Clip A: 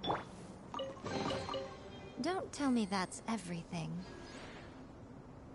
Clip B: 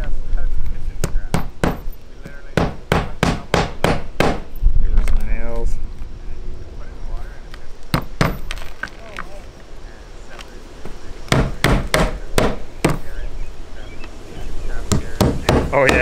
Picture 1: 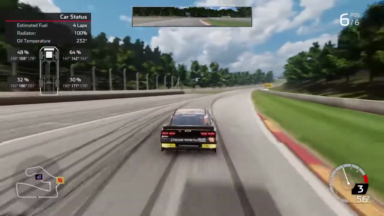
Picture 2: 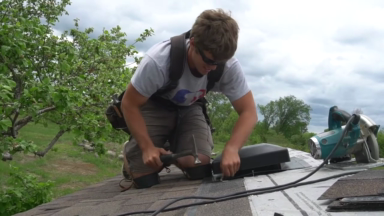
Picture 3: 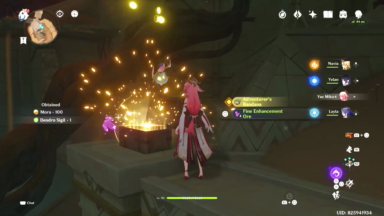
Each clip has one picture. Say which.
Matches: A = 3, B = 2